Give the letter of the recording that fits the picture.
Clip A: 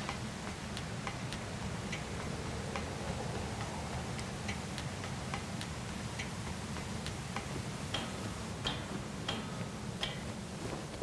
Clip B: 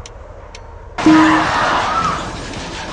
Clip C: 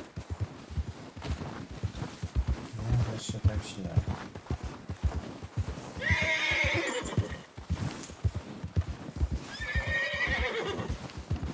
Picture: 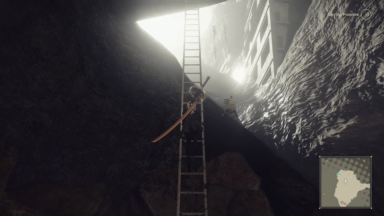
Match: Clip A